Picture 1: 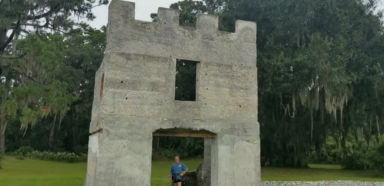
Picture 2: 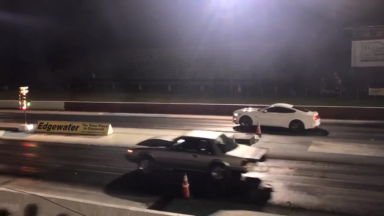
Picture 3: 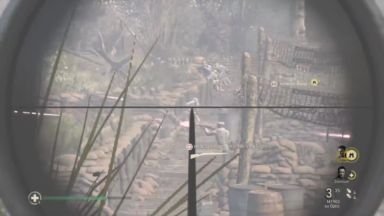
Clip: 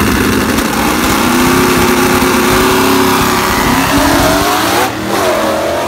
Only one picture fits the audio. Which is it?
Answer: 2